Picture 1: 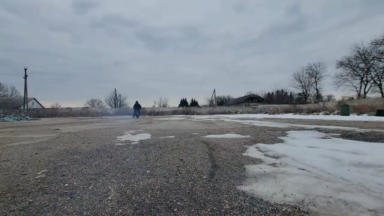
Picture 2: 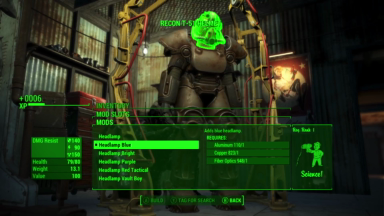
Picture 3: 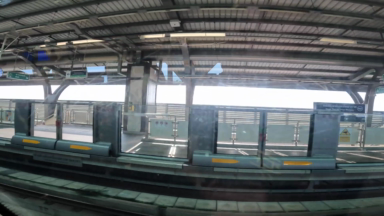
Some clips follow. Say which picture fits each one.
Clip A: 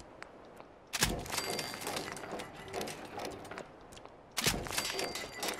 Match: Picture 2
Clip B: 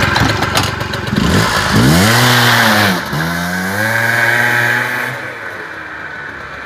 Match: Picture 1